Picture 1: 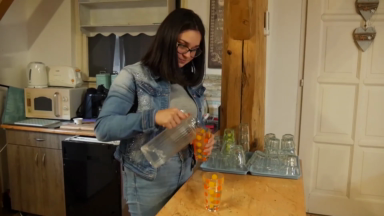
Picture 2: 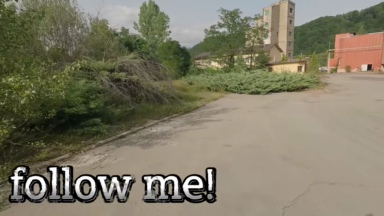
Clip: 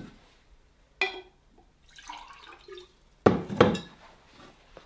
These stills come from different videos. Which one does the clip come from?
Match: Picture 1